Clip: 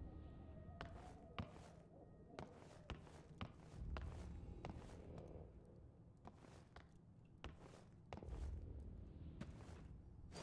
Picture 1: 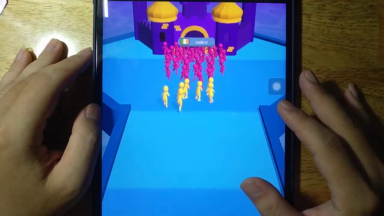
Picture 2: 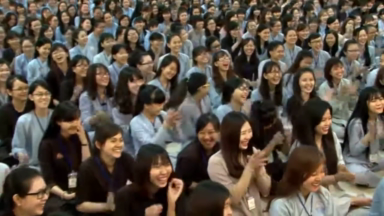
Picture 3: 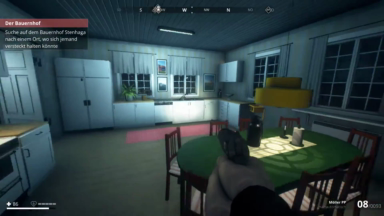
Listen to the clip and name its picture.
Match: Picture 3